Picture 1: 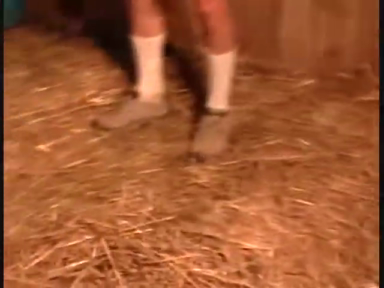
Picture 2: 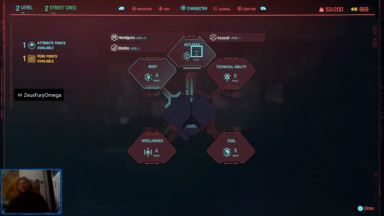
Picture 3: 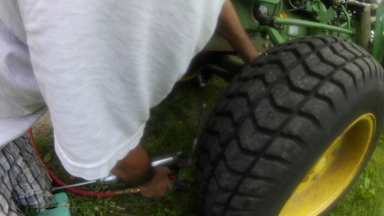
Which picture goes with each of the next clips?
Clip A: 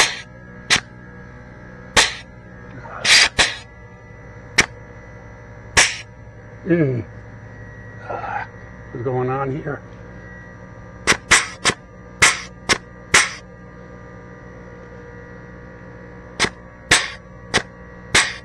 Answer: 3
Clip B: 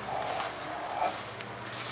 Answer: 1